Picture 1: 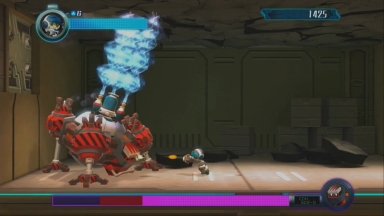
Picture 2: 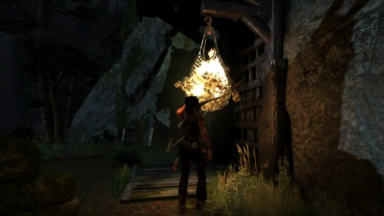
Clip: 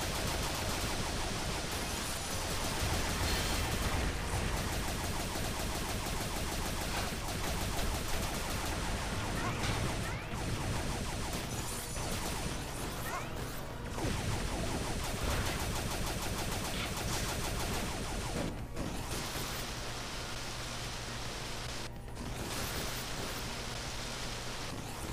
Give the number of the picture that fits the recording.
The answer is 1